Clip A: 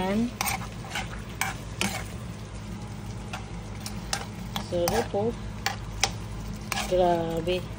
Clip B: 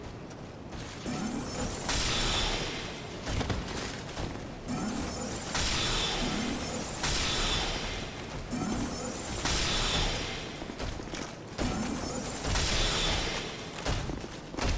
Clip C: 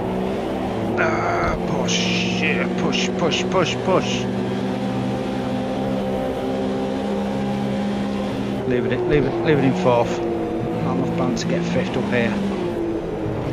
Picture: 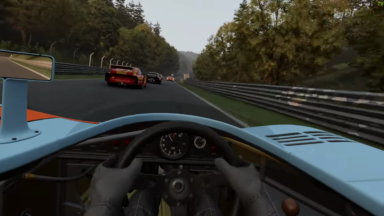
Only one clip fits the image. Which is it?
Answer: C